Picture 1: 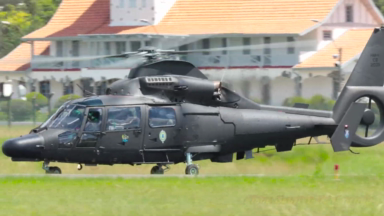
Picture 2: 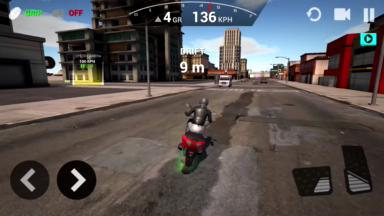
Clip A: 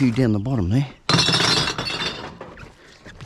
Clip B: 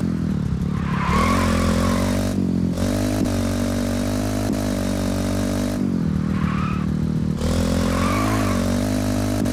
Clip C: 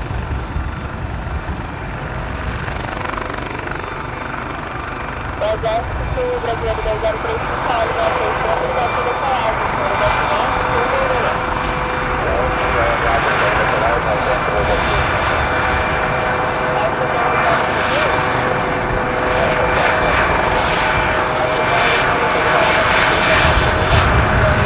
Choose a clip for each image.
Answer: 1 C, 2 B